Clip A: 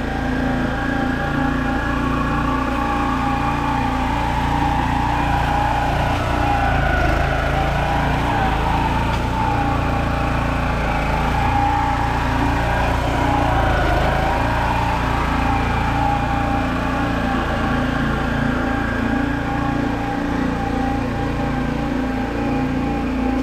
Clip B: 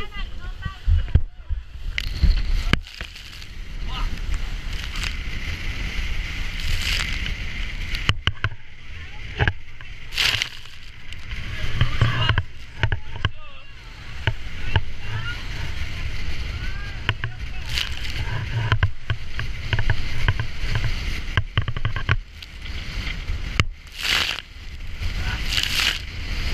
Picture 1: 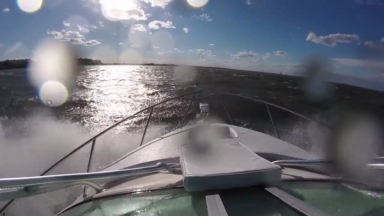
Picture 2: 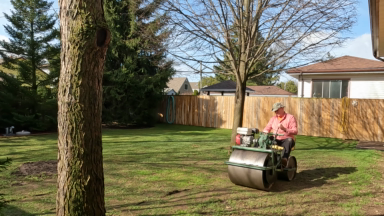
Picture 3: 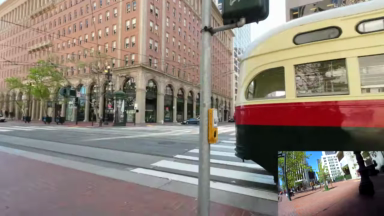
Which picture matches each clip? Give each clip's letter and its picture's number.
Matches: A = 2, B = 1